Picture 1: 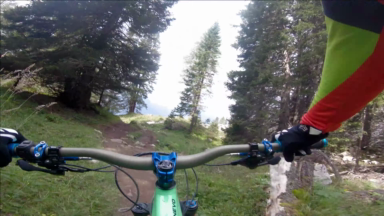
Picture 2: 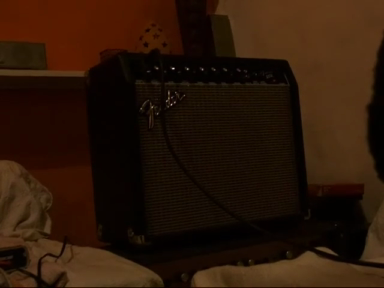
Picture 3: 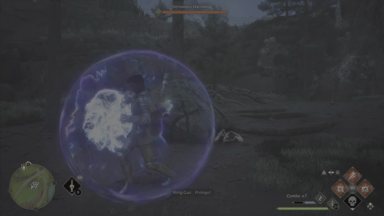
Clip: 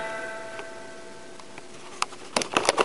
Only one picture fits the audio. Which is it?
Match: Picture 2